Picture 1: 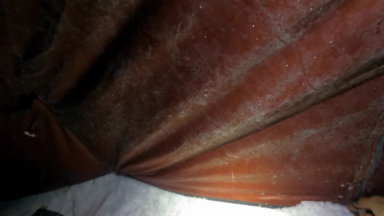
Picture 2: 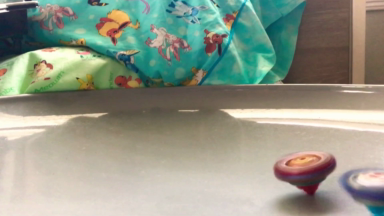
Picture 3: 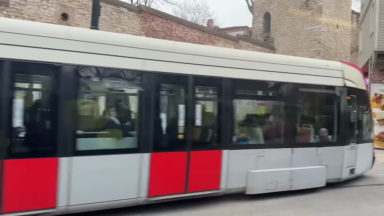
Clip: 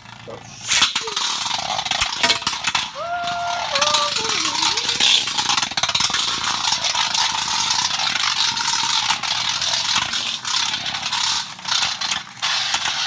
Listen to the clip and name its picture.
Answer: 2